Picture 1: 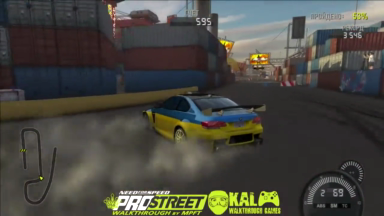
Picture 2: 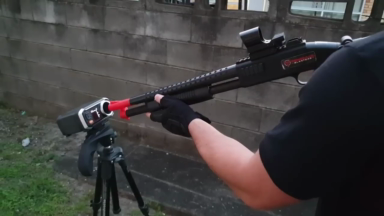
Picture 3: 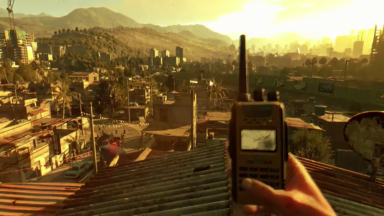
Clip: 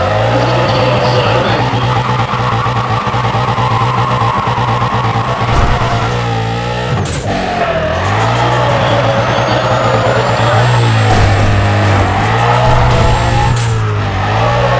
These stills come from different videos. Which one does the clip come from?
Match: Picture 1